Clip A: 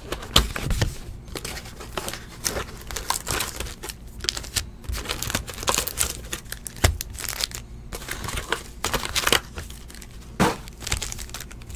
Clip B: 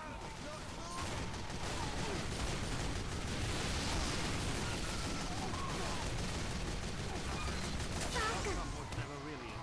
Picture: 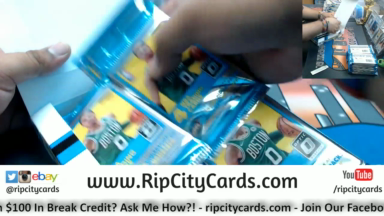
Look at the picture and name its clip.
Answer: A